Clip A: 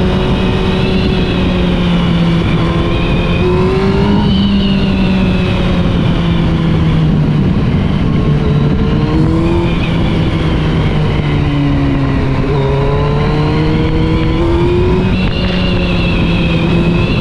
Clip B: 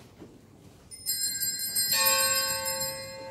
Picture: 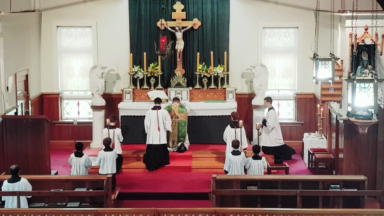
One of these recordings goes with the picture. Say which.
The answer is B